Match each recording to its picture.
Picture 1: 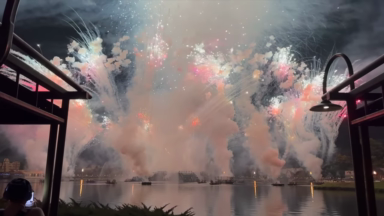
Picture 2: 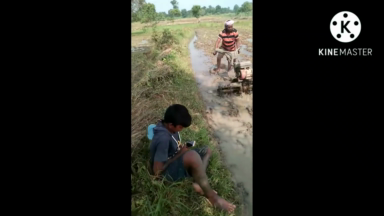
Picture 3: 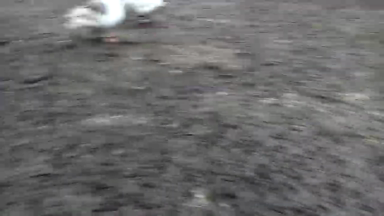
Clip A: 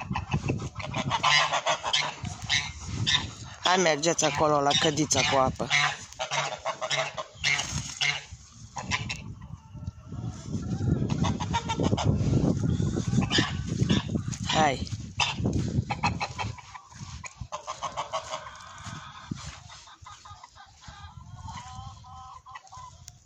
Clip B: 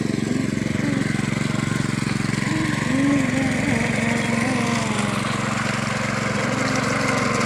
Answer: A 3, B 2